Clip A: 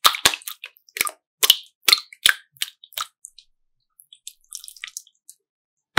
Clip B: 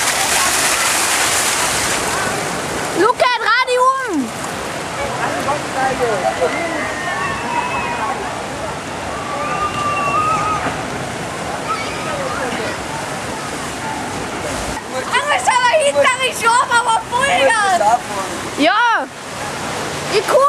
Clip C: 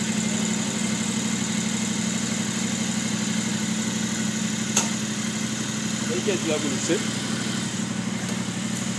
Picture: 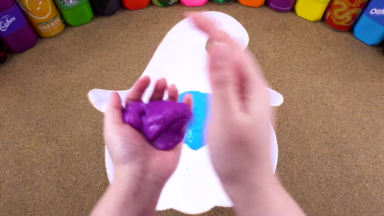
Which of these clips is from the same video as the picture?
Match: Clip A